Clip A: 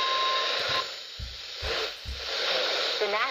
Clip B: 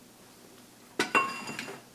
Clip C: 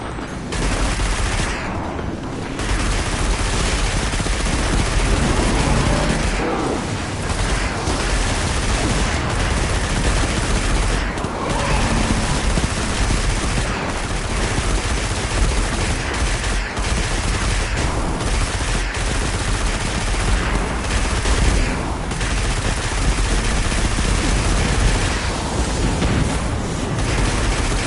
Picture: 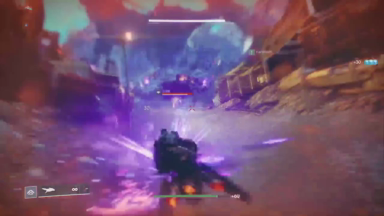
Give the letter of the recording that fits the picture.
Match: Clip C